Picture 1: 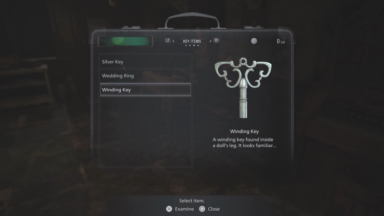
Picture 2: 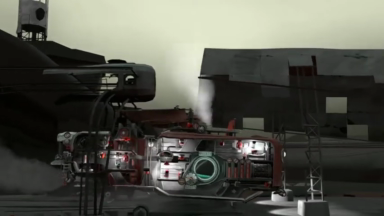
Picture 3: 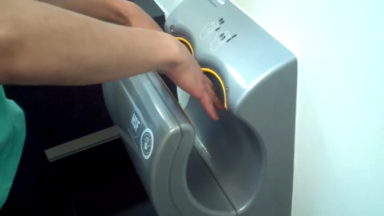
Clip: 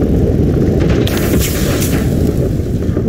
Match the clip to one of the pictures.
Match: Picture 2